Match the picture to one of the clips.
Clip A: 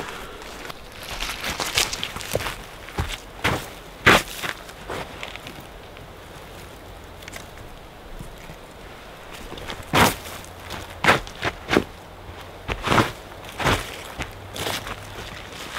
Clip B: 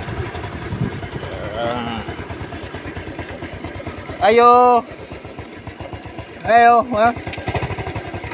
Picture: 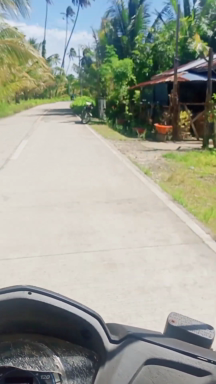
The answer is B